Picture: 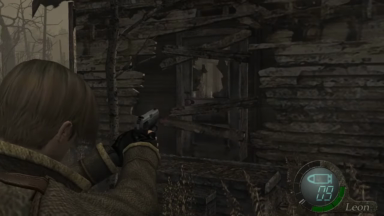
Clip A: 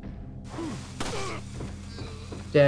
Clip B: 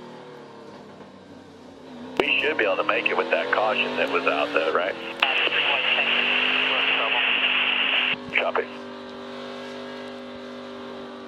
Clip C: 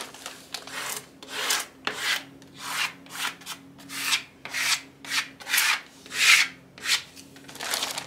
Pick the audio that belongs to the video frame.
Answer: A